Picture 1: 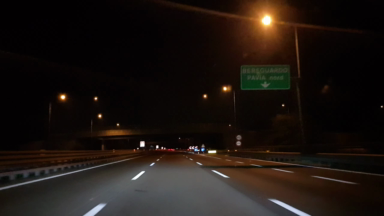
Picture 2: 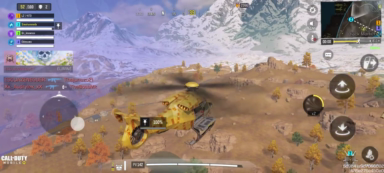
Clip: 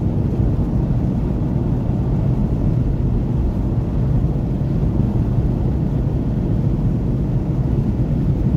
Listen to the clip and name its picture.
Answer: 1